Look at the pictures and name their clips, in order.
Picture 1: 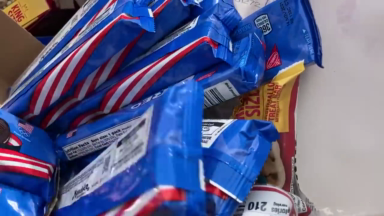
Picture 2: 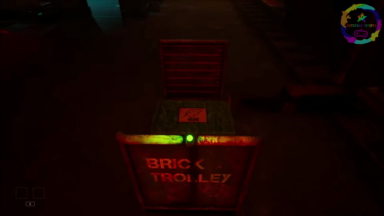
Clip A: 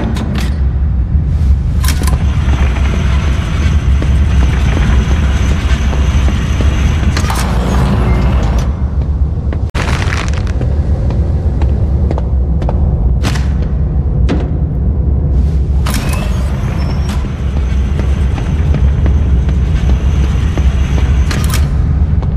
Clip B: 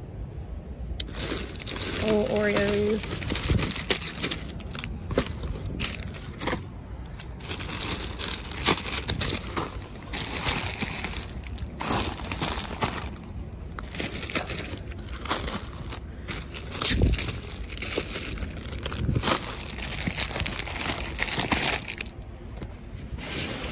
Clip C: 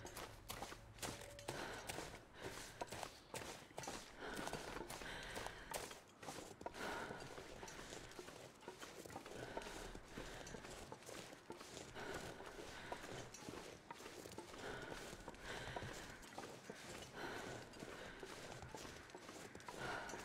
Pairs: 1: B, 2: A